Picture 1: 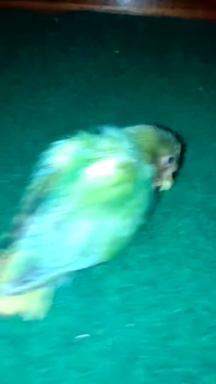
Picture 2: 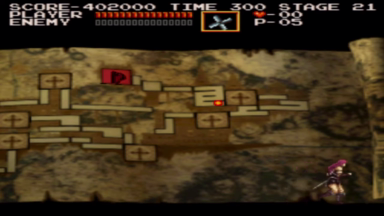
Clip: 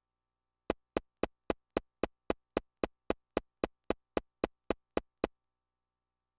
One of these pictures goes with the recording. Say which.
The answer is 2